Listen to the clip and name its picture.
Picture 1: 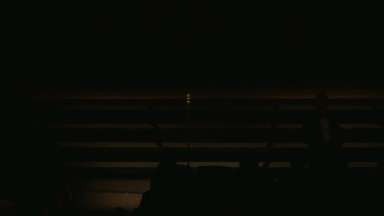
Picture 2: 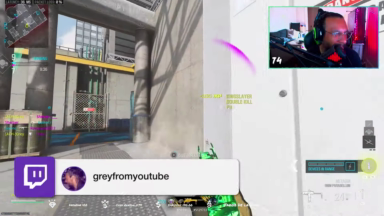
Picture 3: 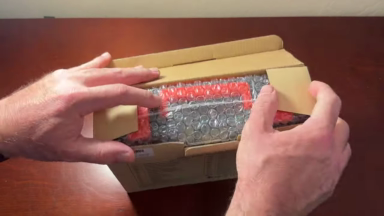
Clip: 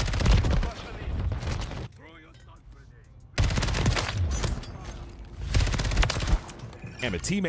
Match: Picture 2